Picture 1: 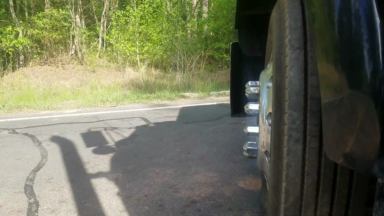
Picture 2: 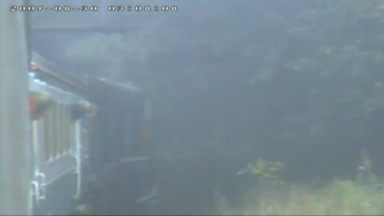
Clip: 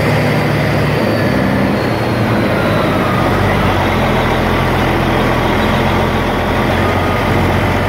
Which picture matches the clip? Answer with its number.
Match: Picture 1